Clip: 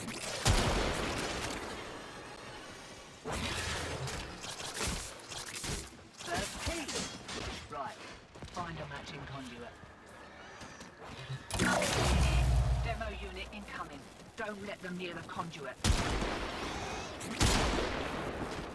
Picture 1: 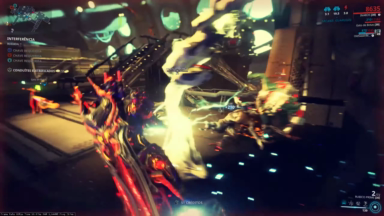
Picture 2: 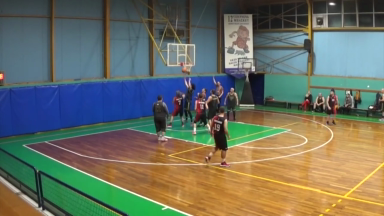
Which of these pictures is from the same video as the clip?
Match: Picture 1